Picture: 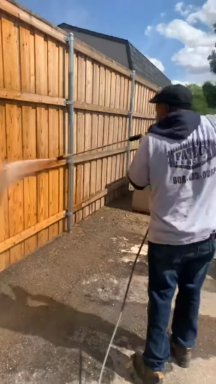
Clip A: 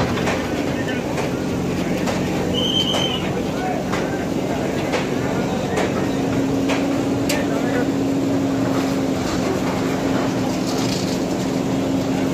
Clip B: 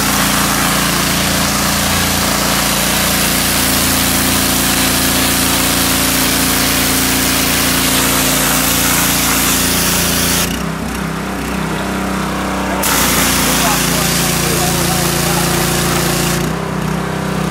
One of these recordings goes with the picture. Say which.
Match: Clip B